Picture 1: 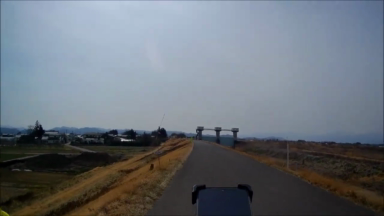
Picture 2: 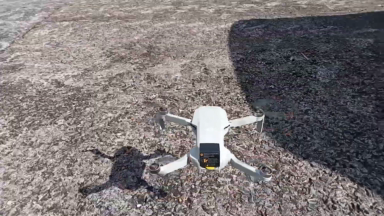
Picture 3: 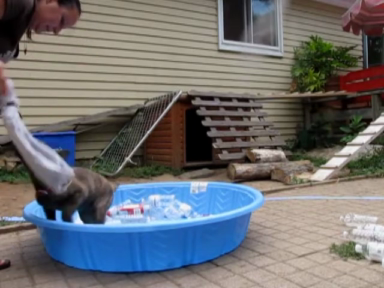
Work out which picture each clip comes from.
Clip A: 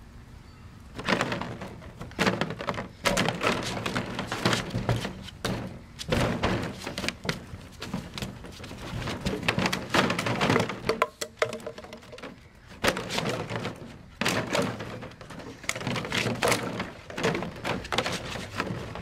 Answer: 3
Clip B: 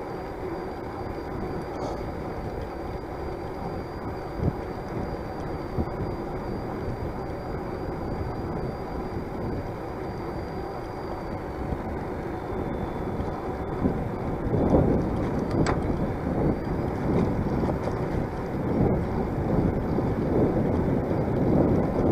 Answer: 1